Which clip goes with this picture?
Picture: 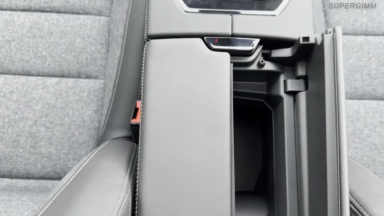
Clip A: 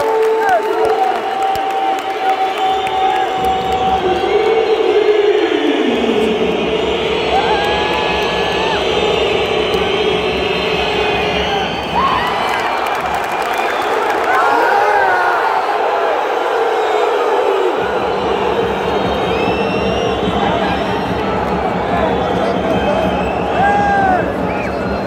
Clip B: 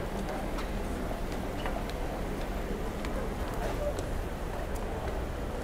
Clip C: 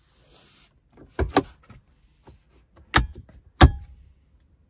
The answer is C